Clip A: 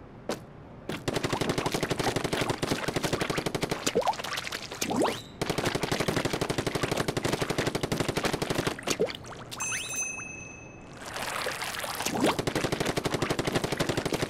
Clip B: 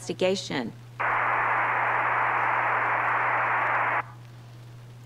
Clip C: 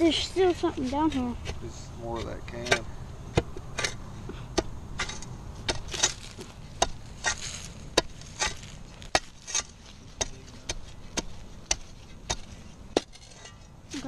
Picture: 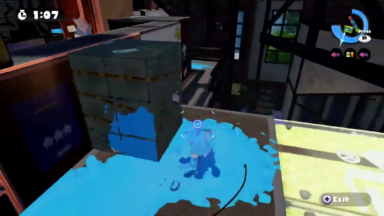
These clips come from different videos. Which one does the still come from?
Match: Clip A